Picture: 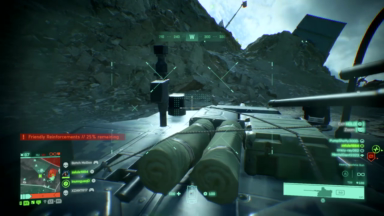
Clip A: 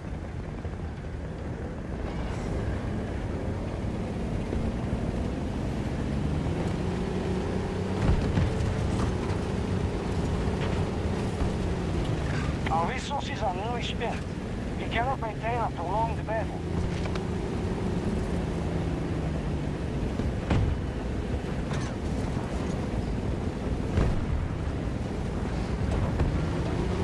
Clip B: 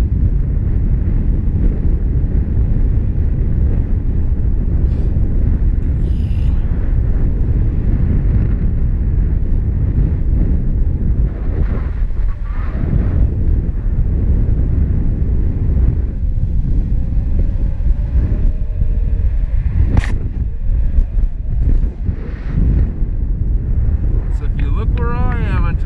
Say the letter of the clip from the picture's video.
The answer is A